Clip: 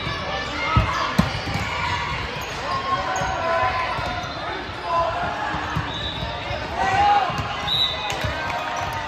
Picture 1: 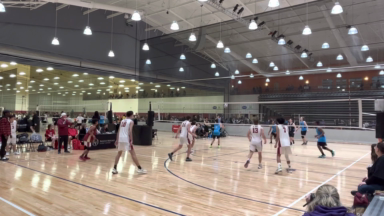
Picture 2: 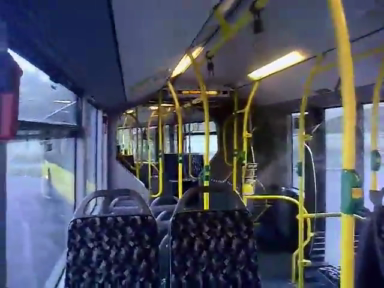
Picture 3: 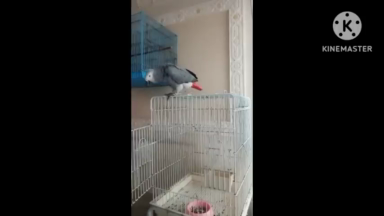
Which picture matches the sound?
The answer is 1